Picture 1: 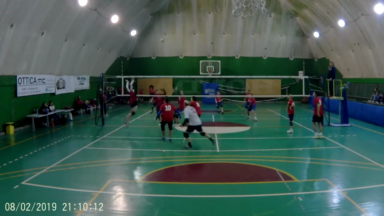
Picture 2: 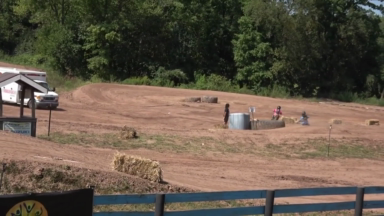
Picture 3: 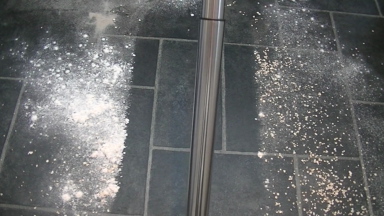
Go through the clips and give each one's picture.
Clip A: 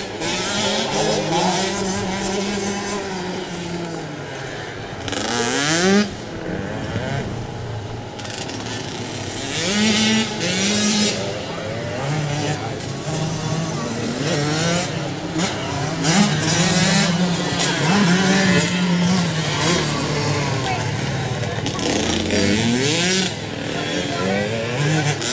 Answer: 2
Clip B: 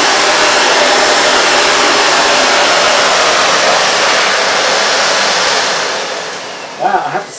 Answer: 3